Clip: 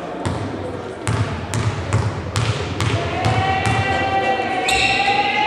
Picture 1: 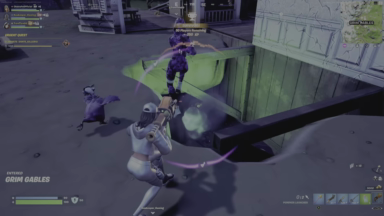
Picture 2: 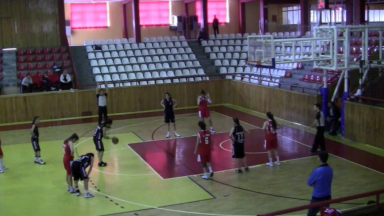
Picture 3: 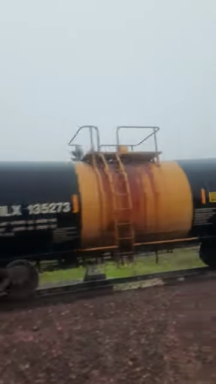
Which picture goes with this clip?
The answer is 2